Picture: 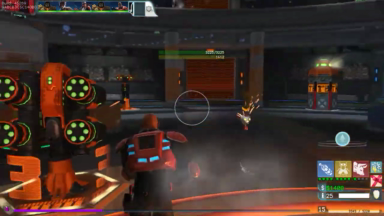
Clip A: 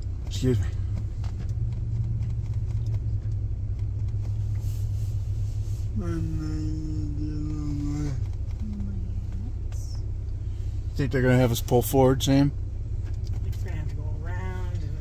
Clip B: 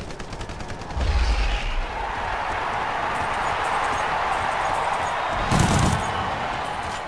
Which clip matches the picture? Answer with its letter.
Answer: B